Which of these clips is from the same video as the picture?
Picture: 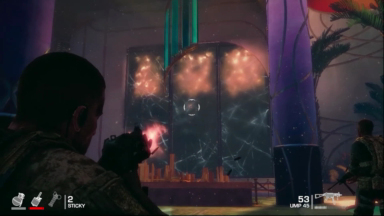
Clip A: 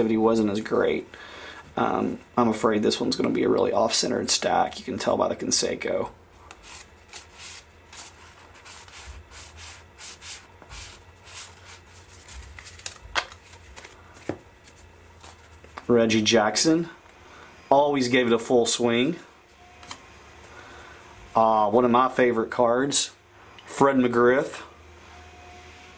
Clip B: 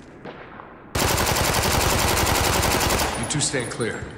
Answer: B